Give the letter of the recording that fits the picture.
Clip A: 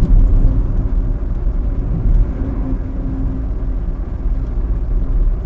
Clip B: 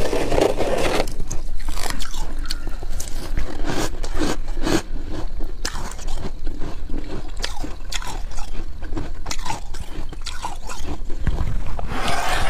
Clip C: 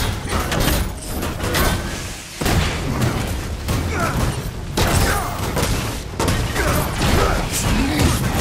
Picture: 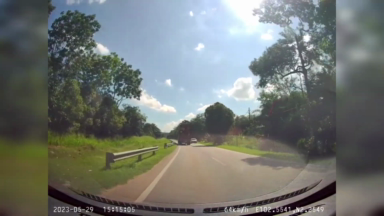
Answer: A